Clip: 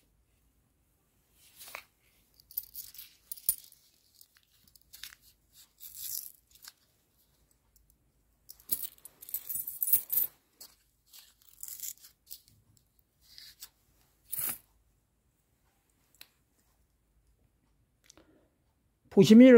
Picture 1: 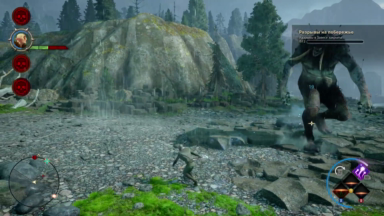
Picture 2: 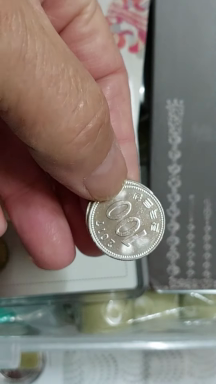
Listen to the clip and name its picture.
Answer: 2